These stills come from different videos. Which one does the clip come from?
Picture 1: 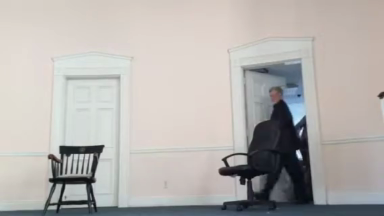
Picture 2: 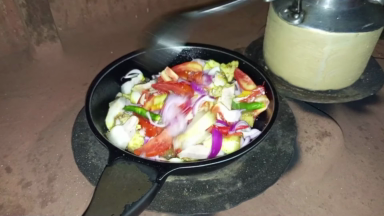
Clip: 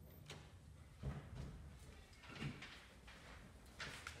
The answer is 1